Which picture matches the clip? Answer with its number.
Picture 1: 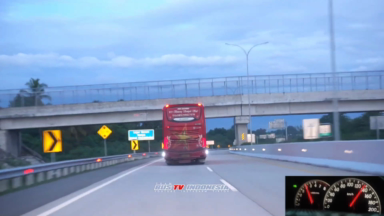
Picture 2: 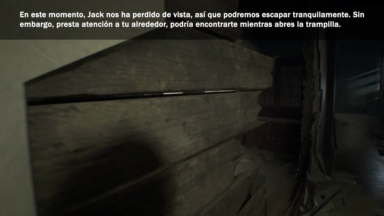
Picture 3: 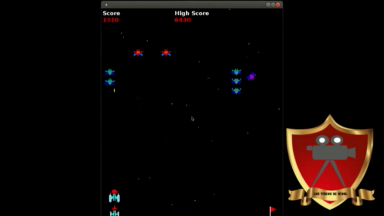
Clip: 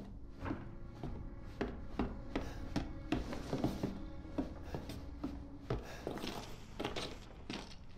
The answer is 2